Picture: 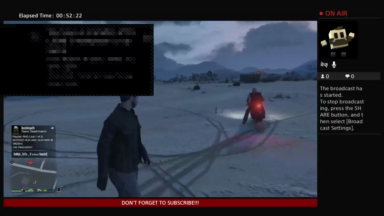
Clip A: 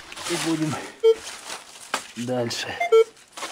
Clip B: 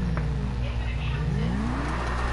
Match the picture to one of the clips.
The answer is B